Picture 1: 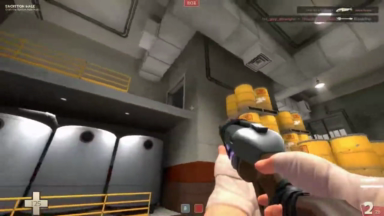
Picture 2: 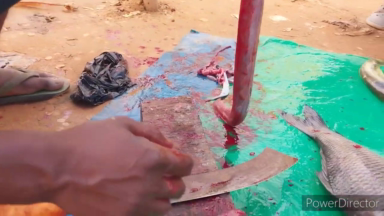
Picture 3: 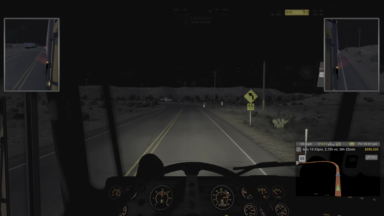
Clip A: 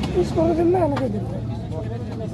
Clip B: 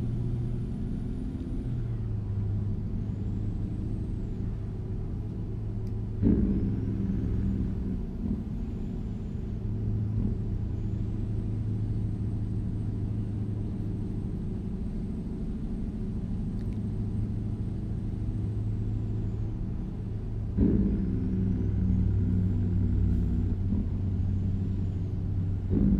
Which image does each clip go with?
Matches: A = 2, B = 3